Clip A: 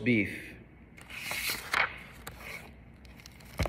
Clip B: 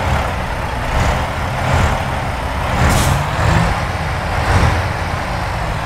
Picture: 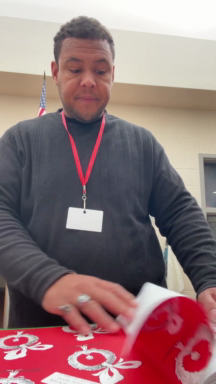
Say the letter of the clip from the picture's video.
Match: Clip A